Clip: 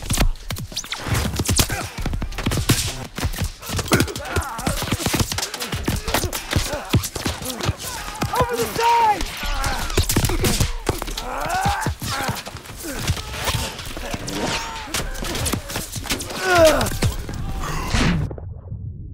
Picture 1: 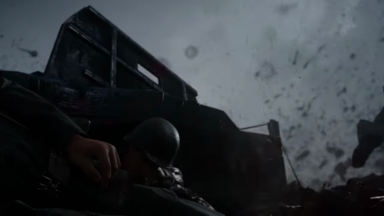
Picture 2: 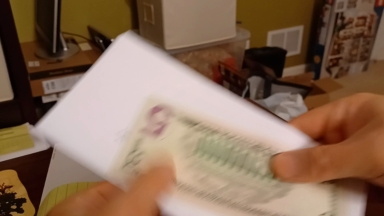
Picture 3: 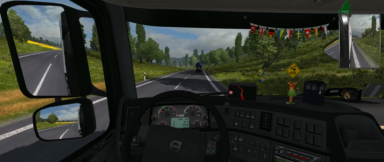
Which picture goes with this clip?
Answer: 1